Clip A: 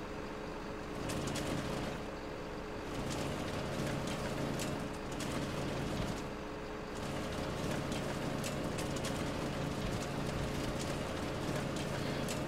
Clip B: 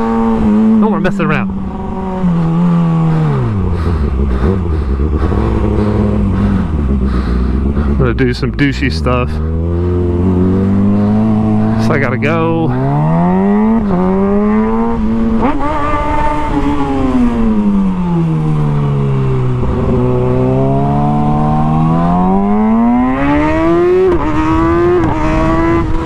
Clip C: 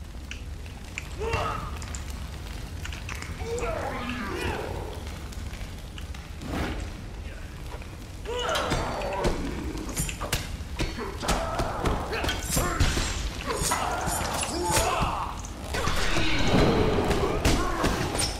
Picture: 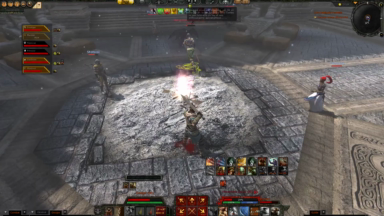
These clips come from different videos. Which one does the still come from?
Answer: C